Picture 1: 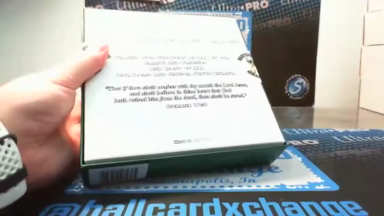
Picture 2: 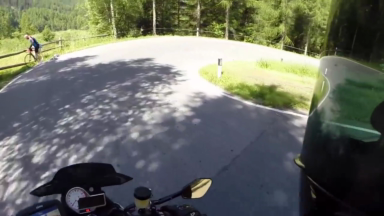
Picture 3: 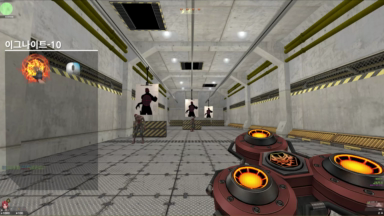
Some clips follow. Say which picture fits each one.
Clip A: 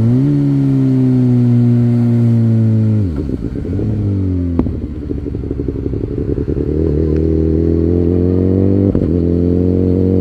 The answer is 2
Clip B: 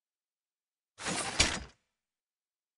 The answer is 3